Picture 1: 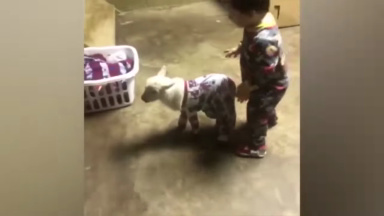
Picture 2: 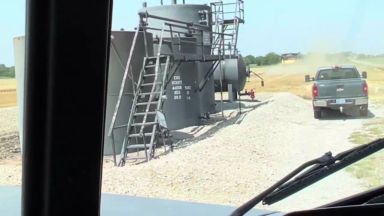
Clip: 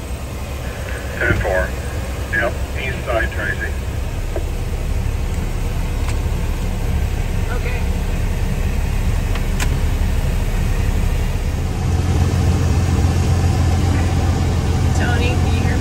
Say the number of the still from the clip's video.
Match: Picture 2